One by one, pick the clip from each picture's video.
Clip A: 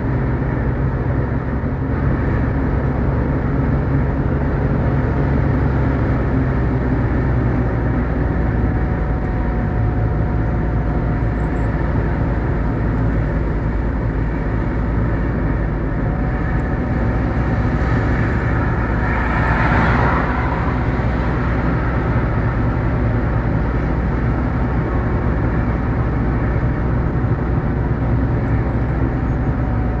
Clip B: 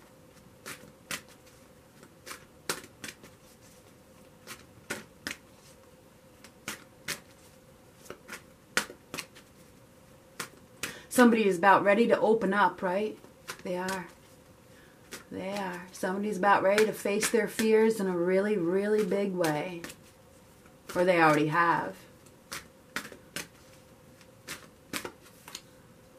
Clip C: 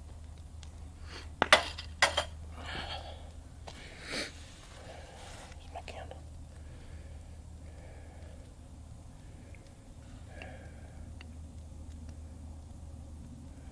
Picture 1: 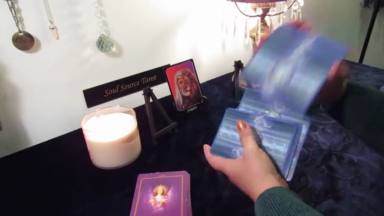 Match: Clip B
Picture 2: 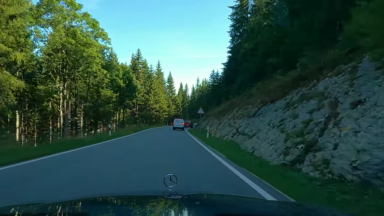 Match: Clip A